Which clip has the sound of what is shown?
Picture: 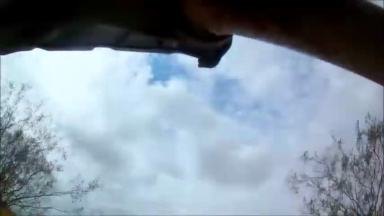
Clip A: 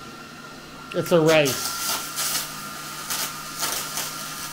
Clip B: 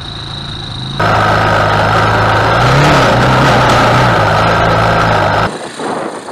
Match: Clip B